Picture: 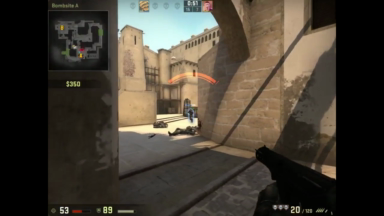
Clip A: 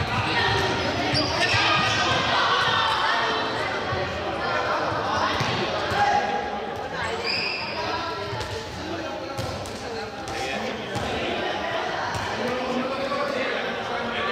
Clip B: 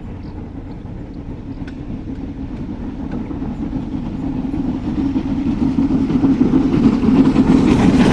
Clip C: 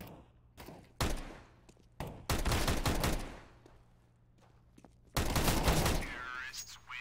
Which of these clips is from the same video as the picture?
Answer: C